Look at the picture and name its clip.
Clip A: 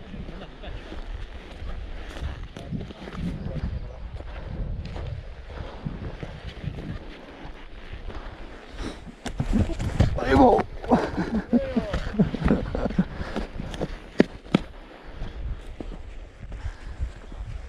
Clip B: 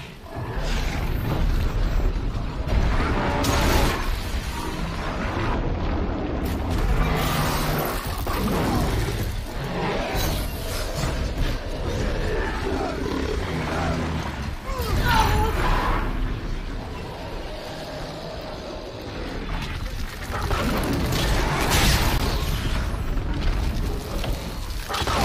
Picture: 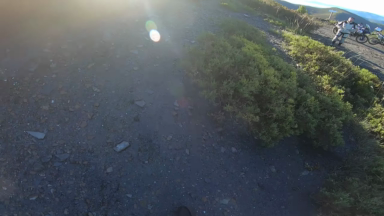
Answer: A